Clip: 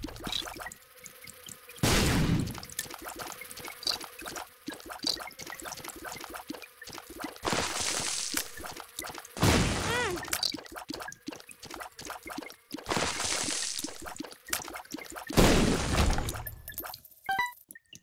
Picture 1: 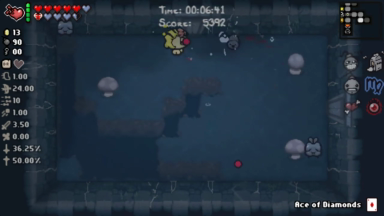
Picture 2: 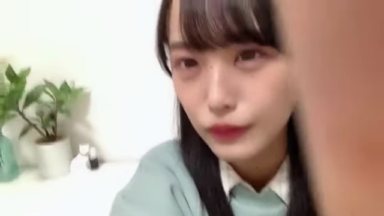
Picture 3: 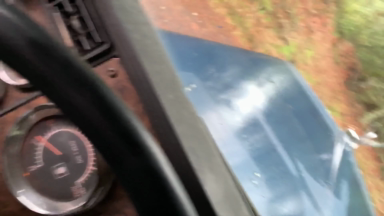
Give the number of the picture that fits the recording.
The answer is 1